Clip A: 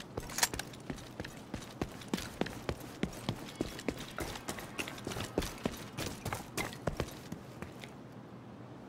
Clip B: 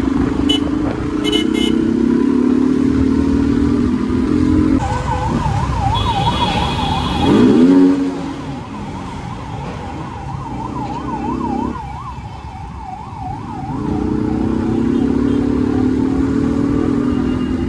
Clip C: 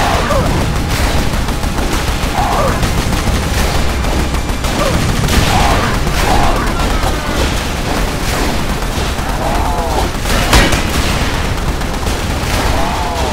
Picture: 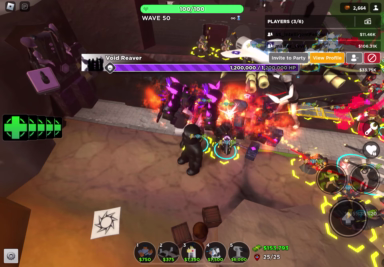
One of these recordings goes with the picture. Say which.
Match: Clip C